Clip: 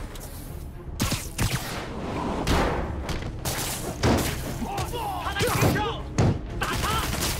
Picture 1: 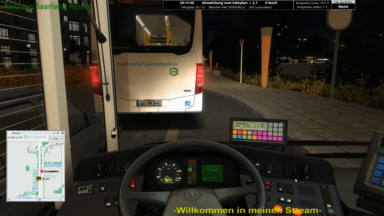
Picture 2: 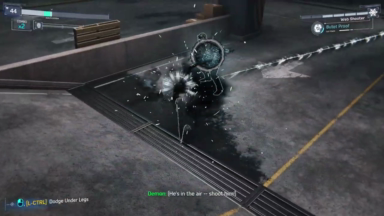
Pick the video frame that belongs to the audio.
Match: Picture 2